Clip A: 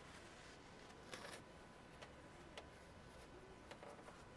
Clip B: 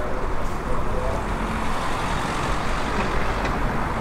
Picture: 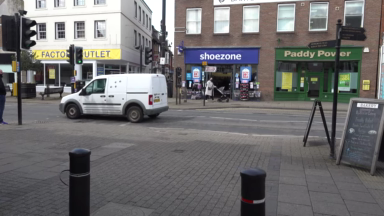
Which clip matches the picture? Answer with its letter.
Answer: B